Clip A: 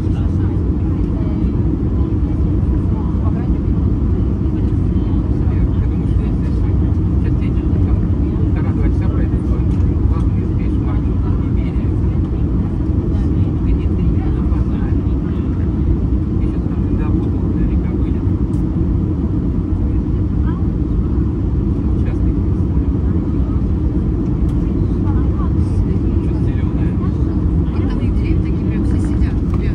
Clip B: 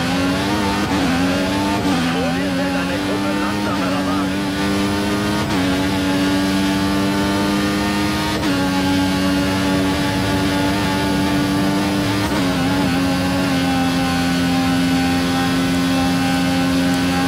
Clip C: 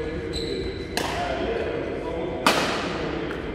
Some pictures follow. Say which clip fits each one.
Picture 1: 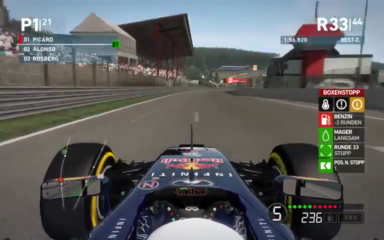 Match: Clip B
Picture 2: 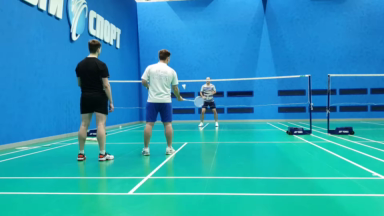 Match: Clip C